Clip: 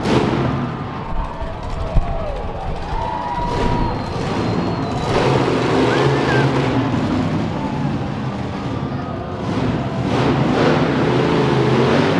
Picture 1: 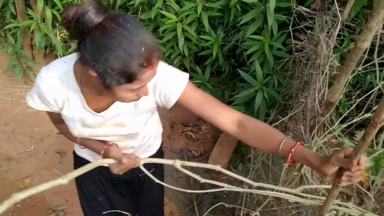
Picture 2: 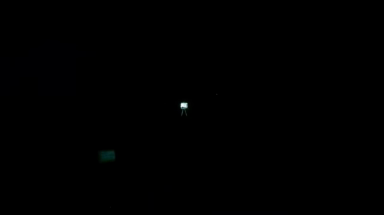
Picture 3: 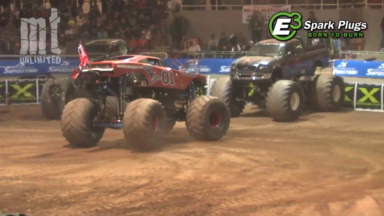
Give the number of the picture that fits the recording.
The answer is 3